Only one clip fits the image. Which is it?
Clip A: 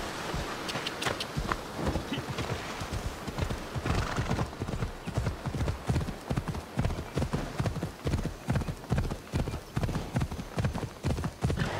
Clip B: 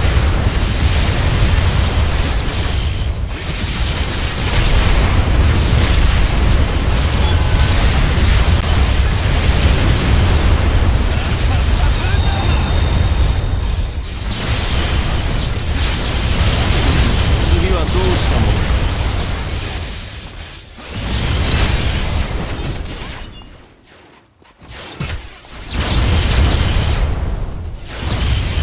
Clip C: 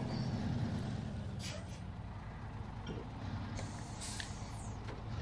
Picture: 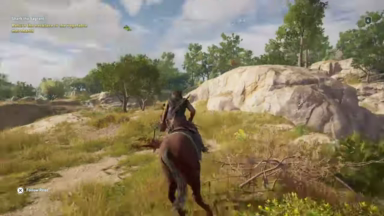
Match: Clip A